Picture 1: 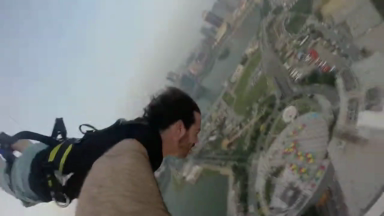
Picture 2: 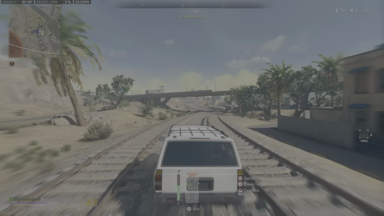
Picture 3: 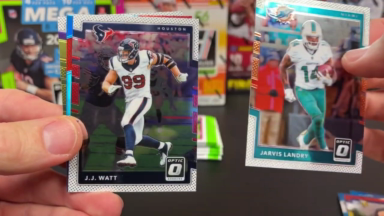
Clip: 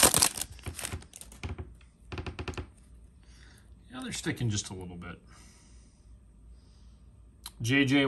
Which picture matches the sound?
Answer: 3